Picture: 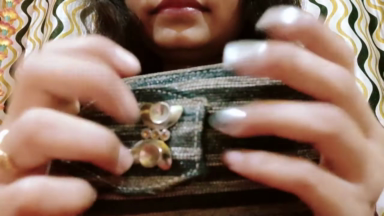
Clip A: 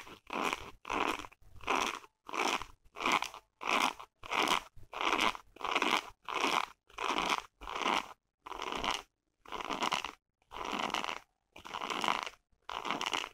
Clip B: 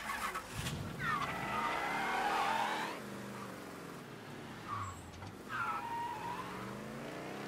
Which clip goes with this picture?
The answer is A